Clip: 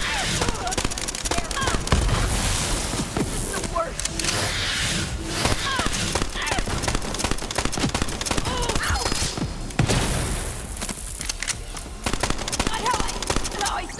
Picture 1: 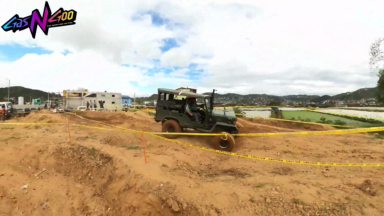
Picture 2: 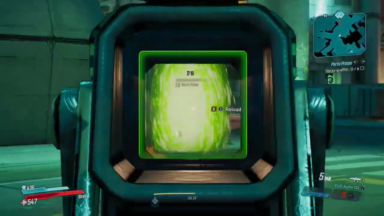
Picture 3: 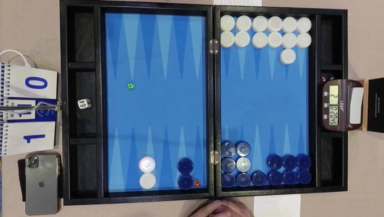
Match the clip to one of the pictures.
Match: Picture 2